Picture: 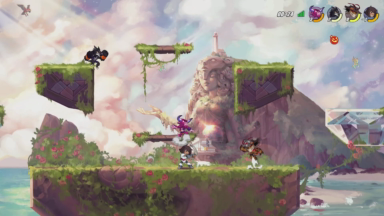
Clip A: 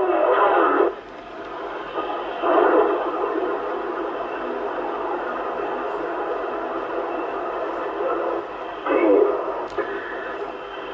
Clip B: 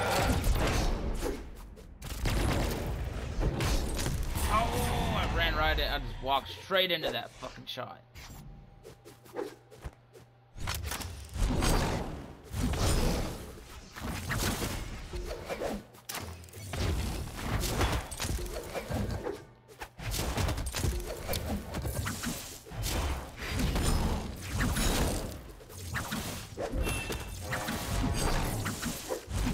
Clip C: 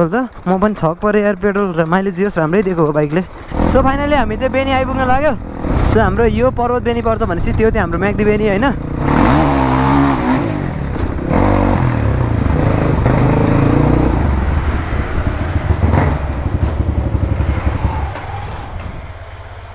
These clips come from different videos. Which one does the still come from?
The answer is B